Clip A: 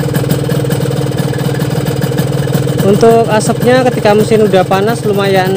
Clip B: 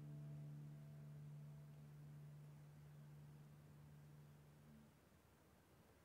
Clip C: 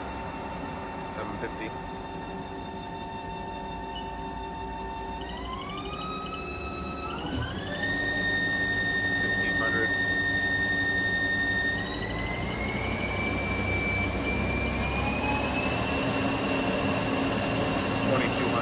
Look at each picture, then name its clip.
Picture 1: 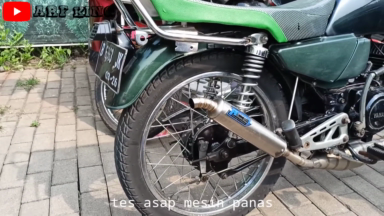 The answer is A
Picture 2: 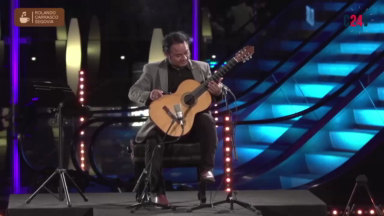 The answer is B